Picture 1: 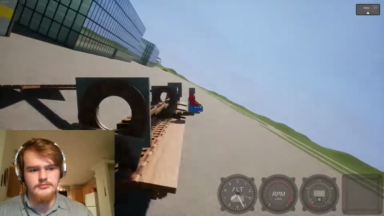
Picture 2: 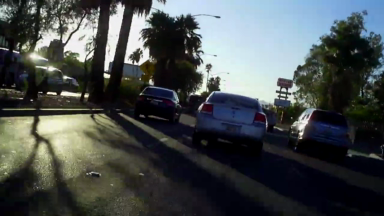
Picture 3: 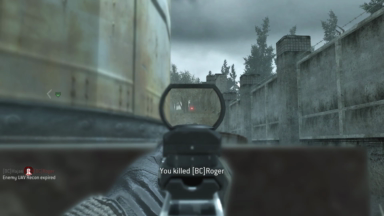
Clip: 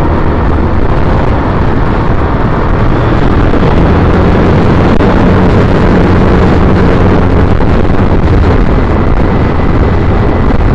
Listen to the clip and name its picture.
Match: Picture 2